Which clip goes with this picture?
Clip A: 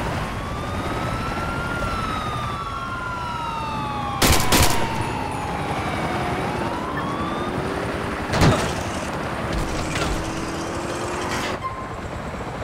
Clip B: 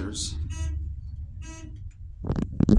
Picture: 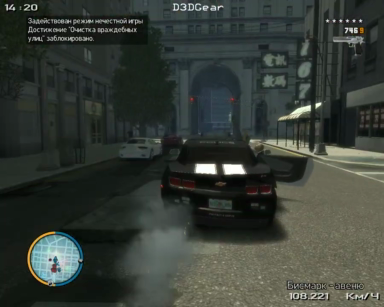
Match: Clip A